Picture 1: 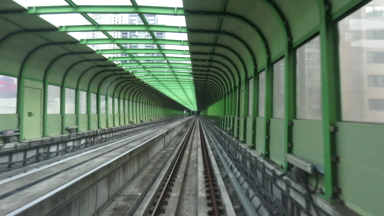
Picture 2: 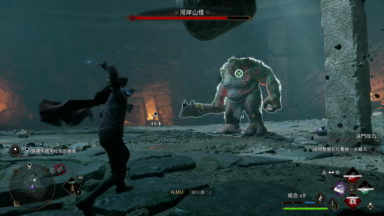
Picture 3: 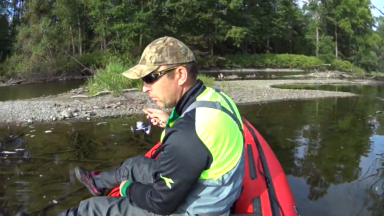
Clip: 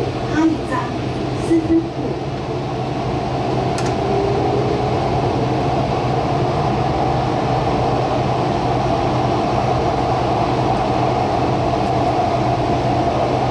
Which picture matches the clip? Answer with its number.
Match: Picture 1